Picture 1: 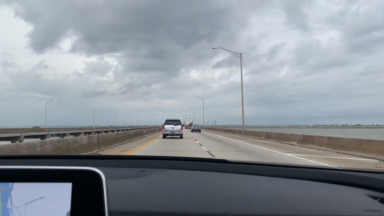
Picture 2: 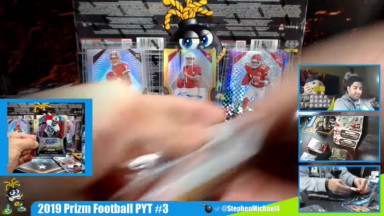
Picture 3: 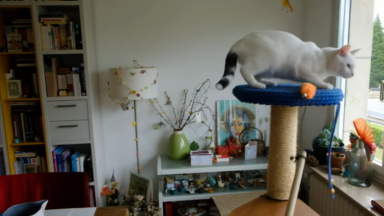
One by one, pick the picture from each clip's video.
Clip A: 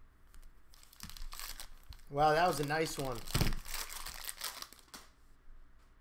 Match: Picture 2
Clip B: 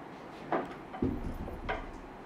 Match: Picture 3